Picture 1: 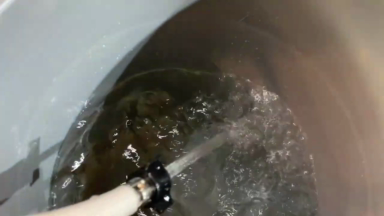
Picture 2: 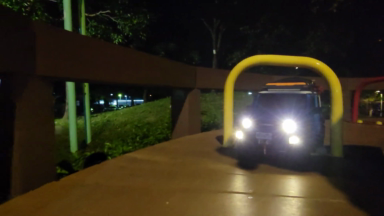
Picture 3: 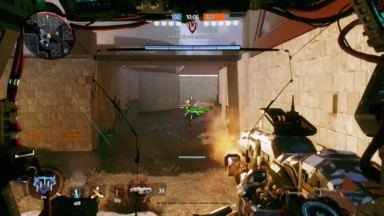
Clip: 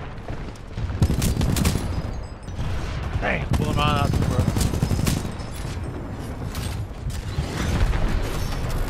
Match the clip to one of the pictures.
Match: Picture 3